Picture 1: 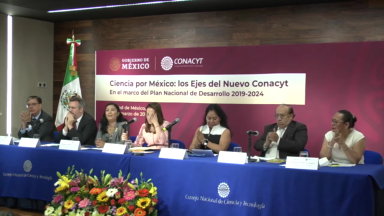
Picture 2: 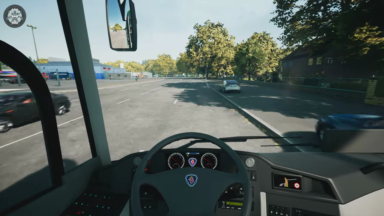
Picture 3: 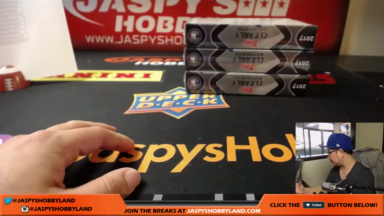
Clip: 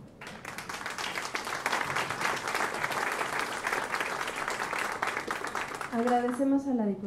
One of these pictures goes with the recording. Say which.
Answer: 1